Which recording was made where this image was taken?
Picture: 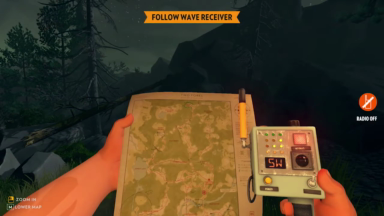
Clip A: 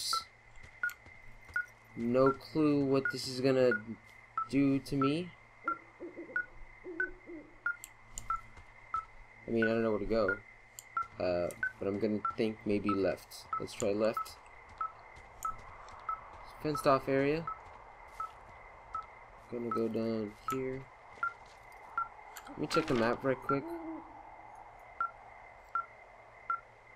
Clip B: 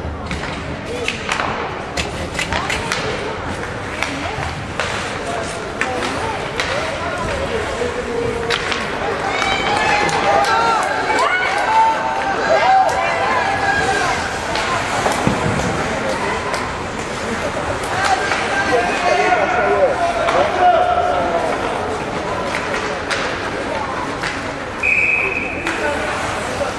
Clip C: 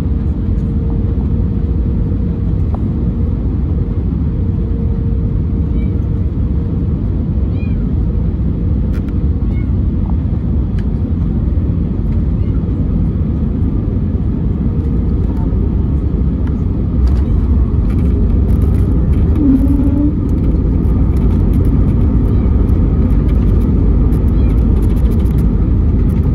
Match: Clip A